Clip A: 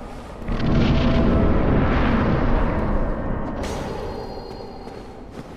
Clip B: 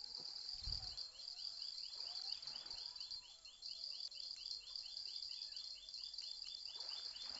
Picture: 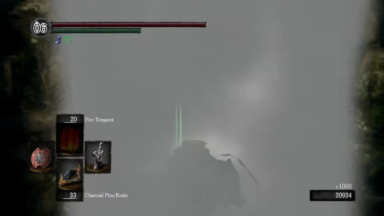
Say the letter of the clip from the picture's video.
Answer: A